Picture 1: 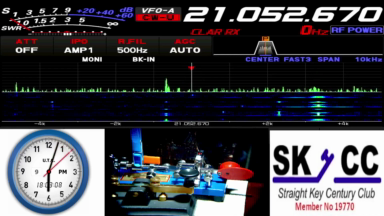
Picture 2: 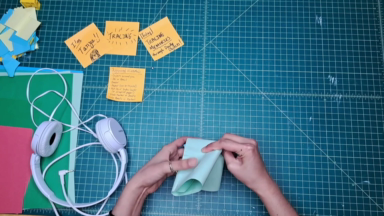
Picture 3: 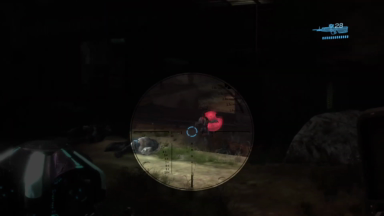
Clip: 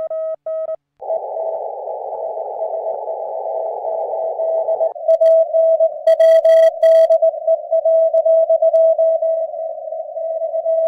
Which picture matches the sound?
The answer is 1